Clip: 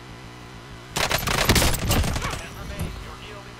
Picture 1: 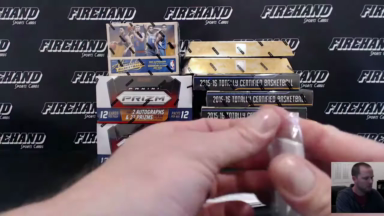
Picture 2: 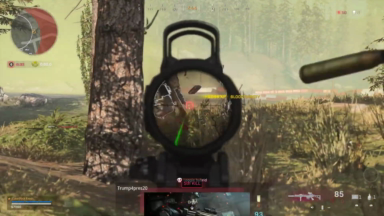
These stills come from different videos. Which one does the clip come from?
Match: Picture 2